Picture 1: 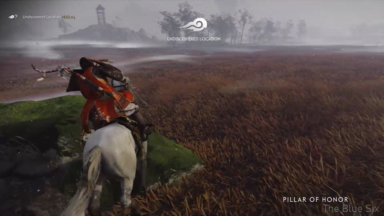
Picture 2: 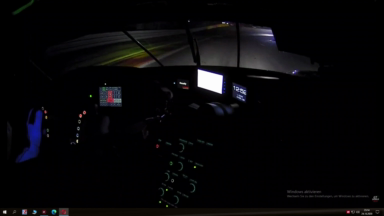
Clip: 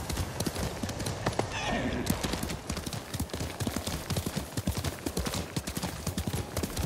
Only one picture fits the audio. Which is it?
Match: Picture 1